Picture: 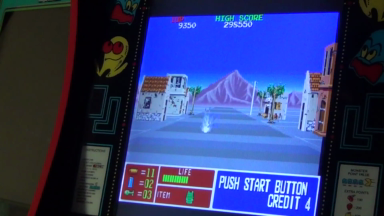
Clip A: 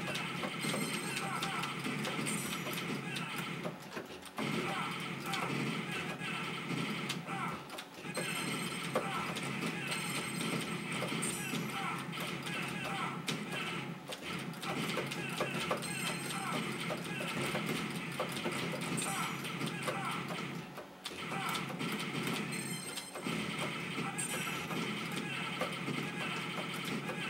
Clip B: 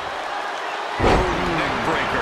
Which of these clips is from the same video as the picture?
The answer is A